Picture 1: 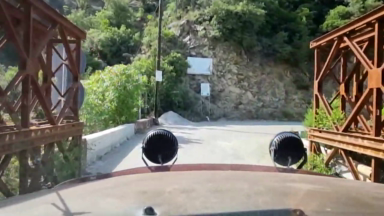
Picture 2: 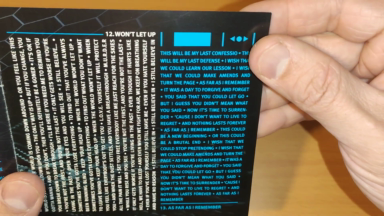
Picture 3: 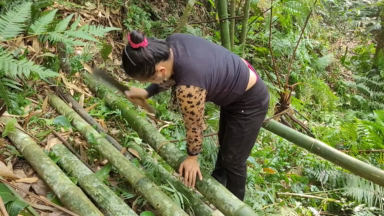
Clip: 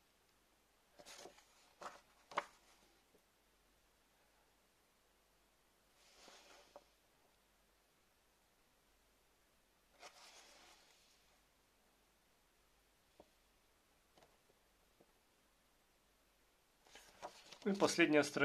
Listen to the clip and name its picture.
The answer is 2